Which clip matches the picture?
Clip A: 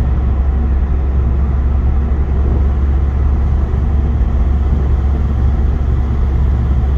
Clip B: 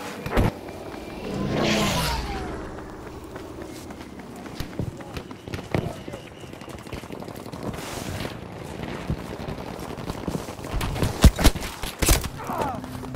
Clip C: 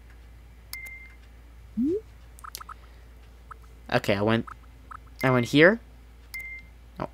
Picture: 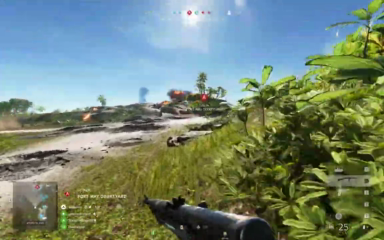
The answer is B